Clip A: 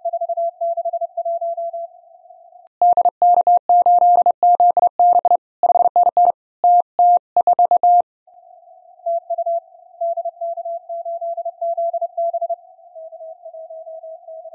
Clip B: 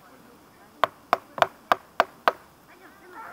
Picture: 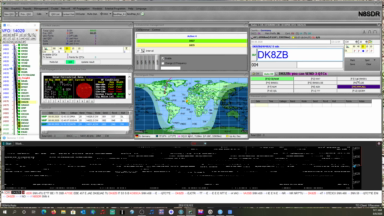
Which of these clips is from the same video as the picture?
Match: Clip A